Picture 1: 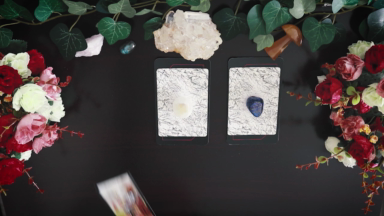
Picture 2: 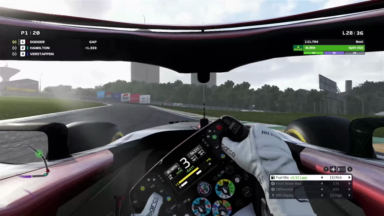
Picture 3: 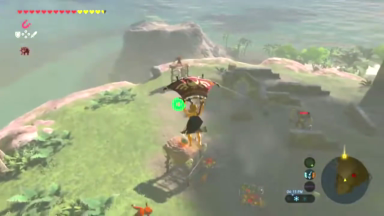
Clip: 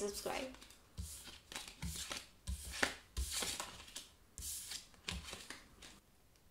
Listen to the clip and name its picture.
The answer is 1